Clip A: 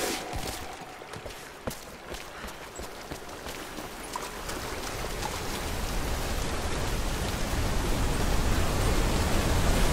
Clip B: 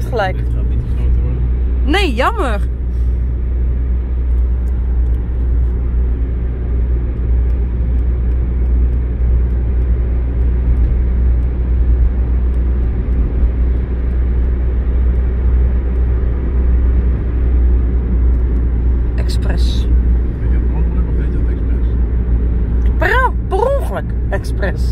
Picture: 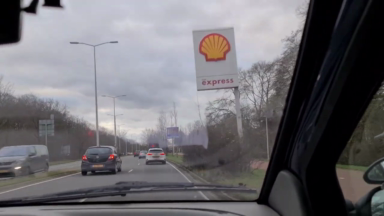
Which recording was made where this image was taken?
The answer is B